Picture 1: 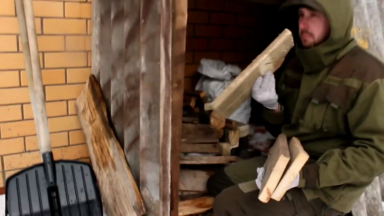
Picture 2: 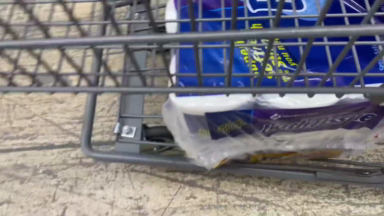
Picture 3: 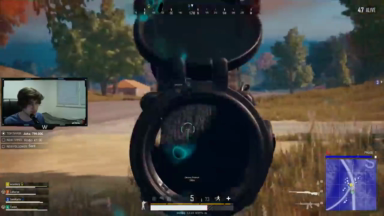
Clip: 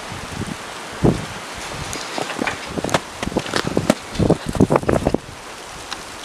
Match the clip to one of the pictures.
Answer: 1